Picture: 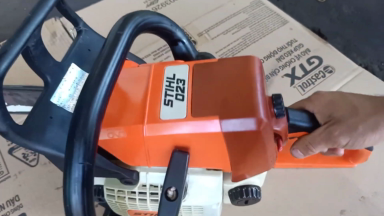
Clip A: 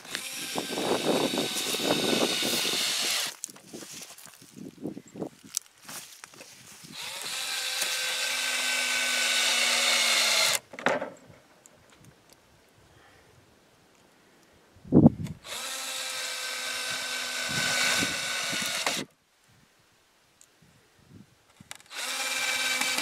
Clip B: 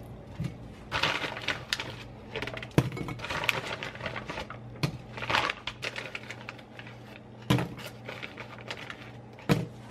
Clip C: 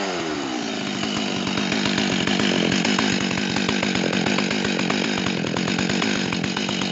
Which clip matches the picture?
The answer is C